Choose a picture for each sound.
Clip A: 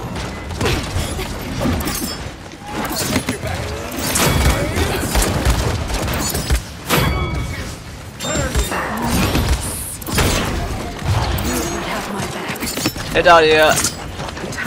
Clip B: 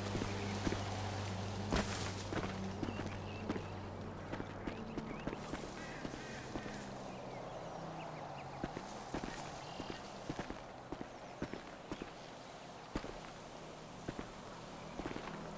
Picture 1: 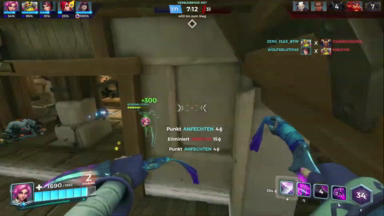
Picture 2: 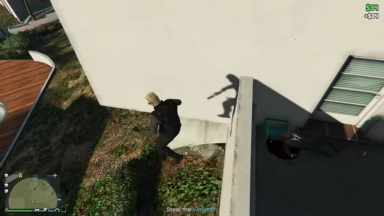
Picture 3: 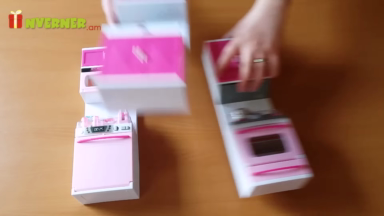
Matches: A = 1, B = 2